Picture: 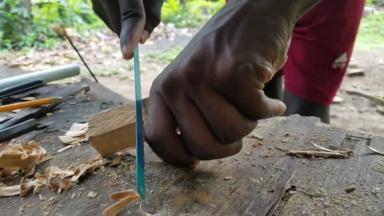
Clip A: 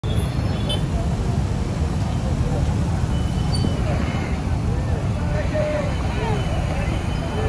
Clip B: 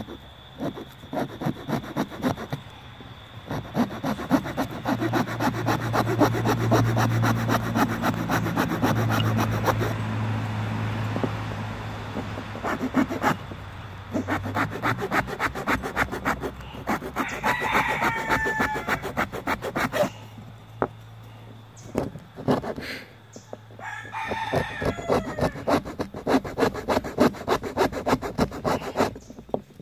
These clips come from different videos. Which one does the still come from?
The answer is B